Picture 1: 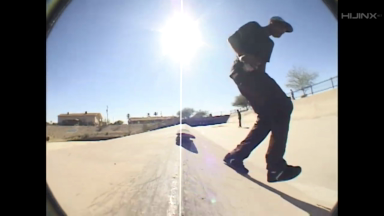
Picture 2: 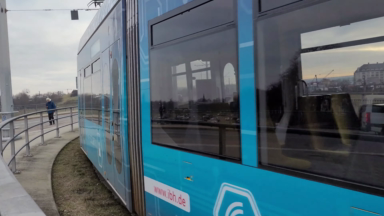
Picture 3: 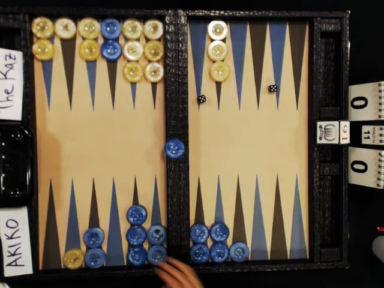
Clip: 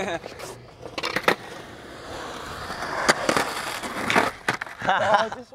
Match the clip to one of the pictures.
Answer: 1